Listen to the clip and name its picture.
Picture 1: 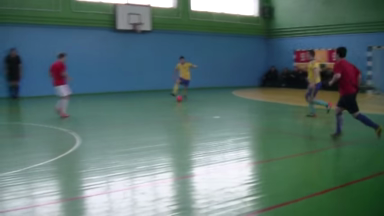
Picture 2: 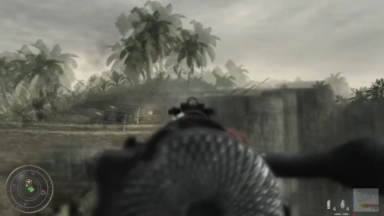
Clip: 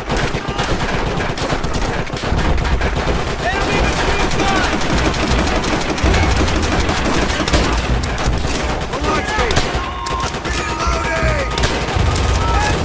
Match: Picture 2